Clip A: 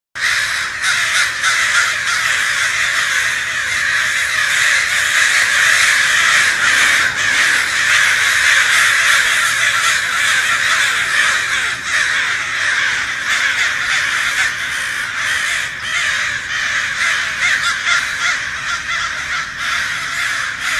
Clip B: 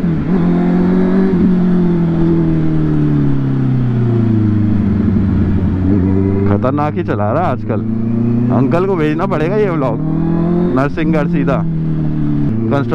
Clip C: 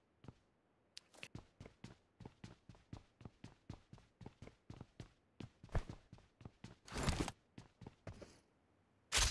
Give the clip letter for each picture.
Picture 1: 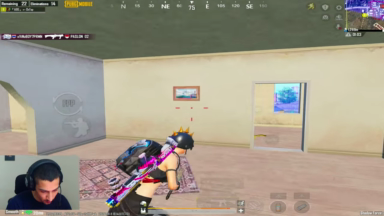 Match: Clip C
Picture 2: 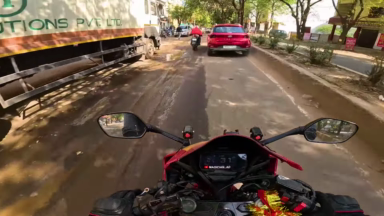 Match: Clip B